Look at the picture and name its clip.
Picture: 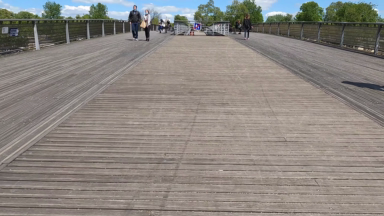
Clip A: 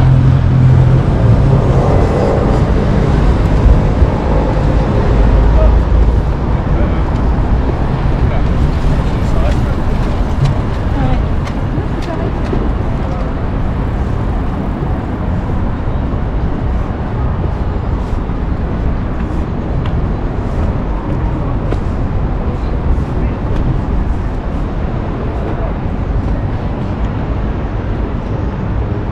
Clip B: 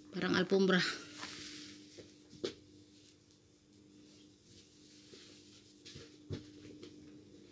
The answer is A